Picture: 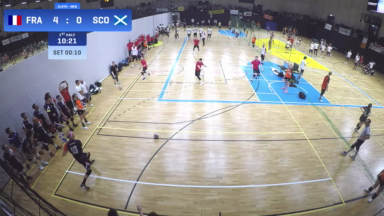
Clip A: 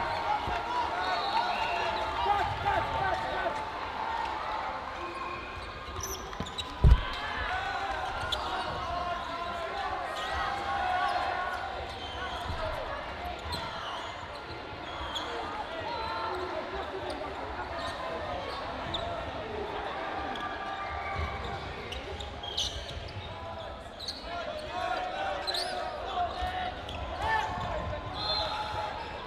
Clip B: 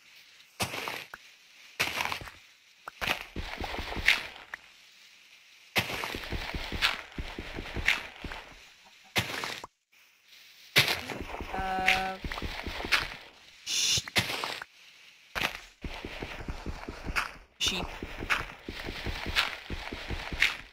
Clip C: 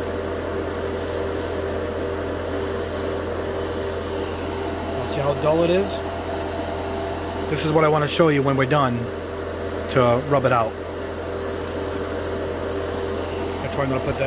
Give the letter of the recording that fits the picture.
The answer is A